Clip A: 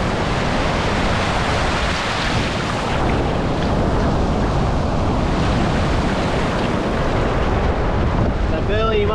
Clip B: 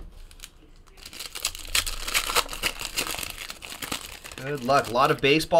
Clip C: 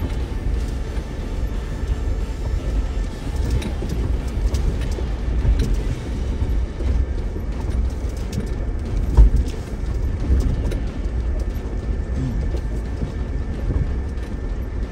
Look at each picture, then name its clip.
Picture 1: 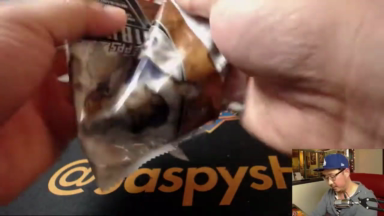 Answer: B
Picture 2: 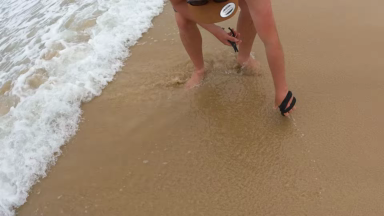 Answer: A